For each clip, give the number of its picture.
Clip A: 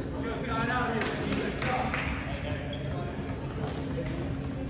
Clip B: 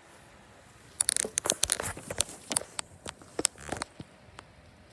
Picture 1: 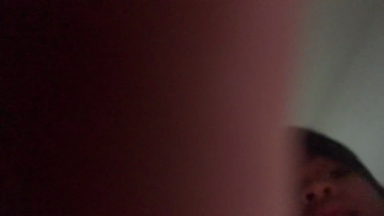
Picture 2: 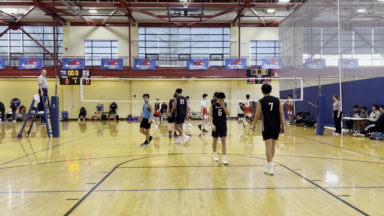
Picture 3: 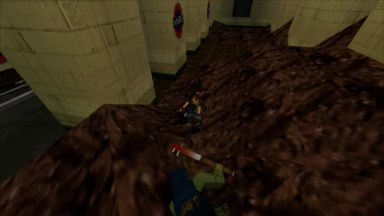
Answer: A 2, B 1